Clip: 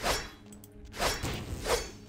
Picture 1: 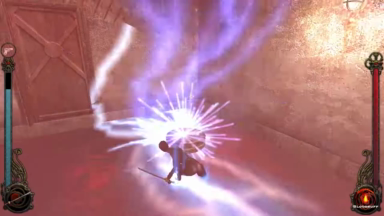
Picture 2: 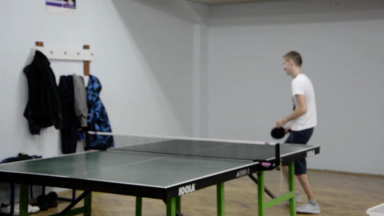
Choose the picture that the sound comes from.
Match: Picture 1